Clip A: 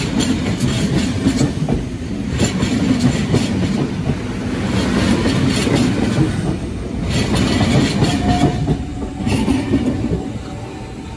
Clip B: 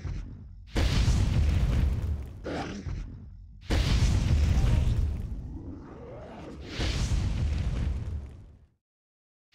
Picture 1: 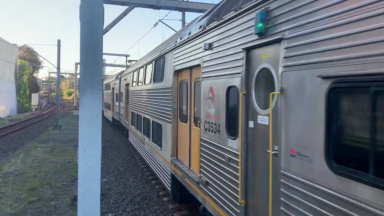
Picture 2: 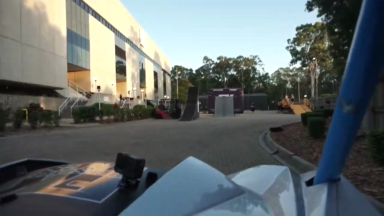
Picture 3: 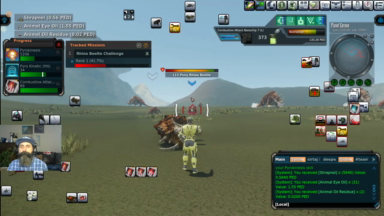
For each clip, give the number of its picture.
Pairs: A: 1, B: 3